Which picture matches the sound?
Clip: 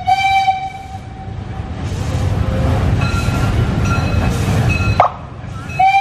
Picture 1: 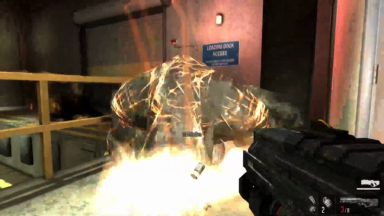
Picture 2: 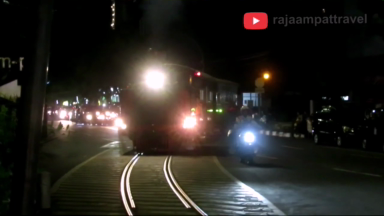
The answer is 2